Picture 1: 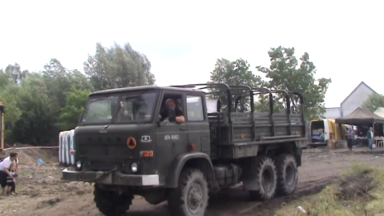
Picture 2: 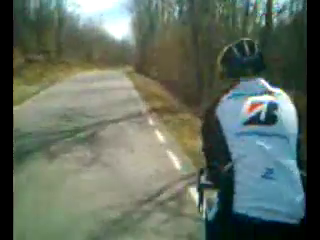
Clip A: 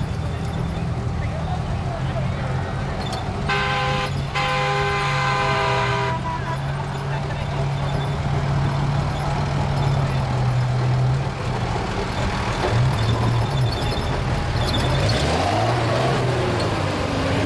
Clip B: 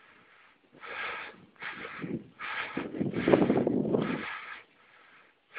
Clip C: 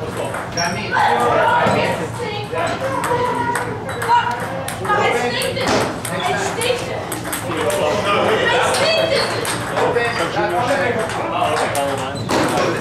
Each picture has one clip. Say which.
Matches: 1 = A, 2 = B